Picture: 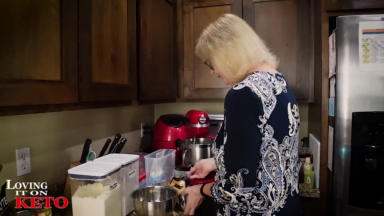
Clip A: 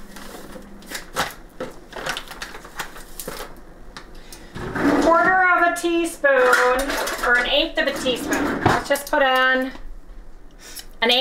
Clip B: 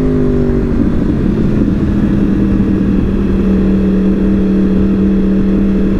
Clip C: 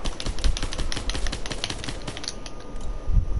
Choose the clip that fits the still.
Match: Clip A